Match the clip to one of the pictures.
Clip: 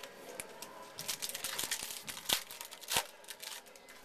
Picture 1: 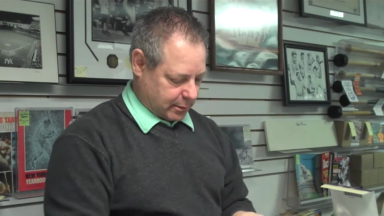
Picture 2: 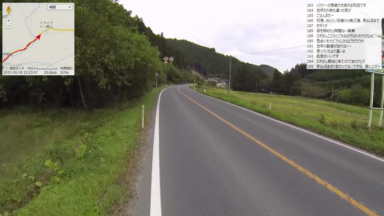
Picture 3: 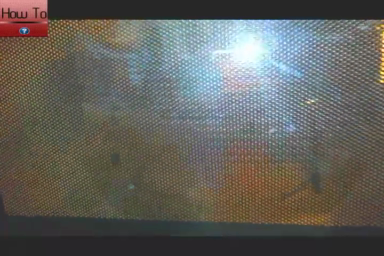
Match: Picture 1